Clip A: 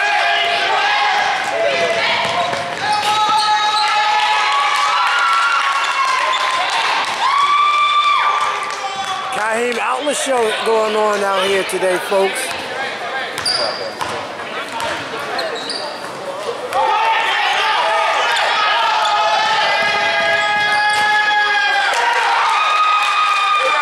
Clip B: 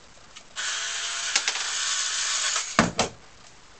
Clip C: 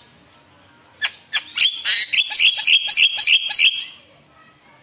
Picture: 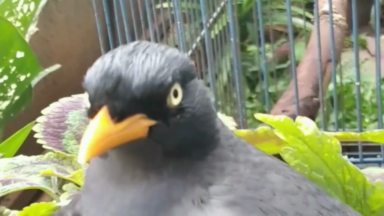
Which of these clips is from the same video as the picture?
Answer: C